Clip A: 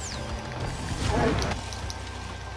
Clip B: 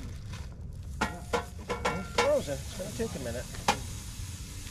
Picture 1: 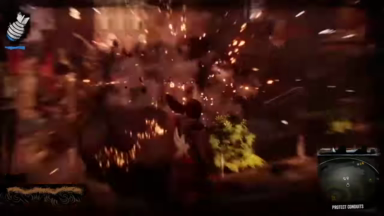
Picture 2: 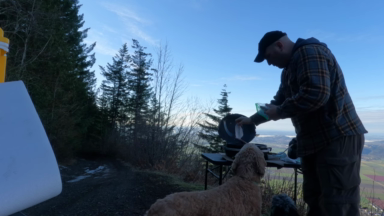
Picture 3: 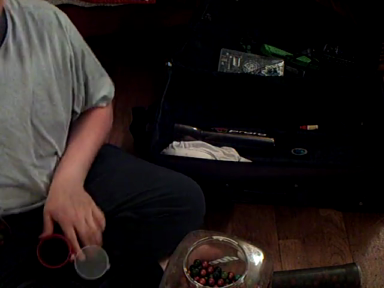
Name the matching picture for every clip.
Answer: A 1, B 2